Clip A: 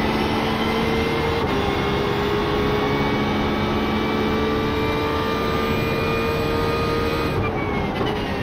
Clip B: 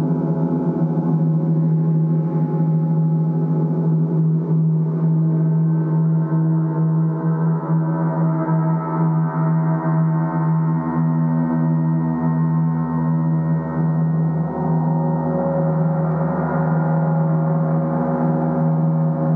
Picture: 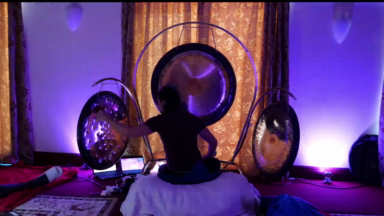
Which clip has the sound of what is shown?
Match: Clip B